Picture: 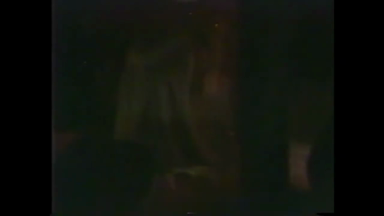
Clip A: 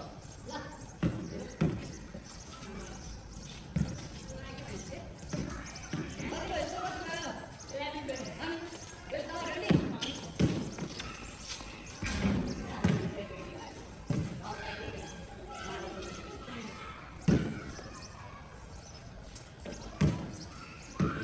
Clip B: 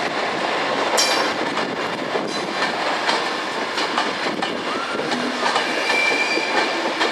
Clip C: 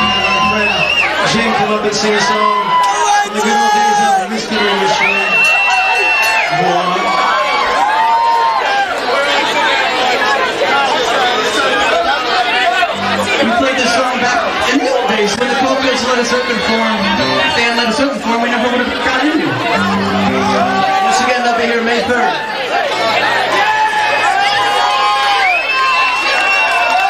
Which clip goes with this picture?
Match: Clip C